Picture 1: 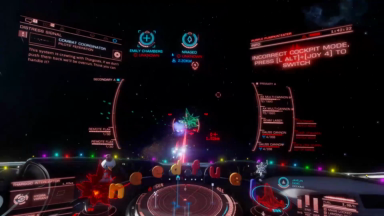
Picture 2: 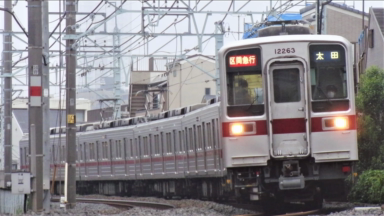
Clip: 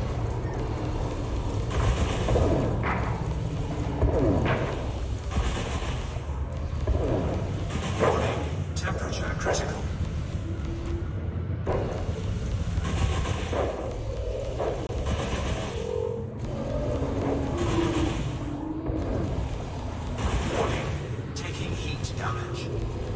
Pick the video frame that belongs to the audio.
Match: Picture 1